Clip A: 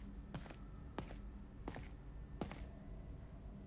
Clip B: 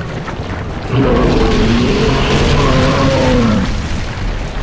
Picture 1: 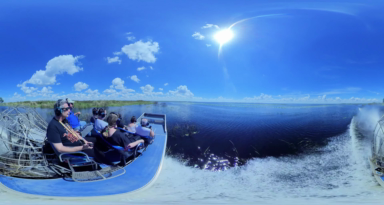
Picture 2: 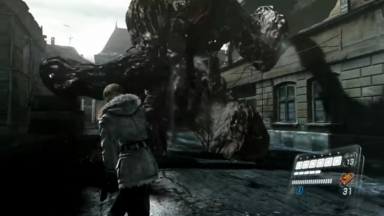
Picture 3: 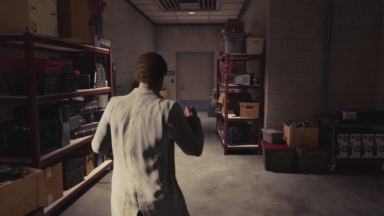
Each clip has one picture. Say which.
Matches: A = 3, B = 2